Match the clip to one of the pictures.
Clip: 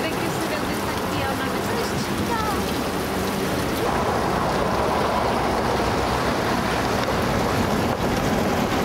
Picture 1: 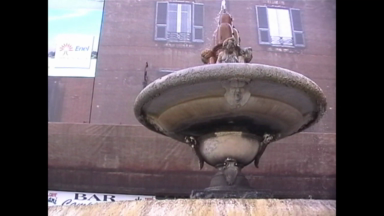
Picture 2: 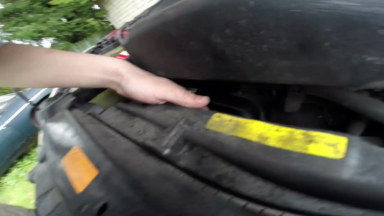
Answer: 1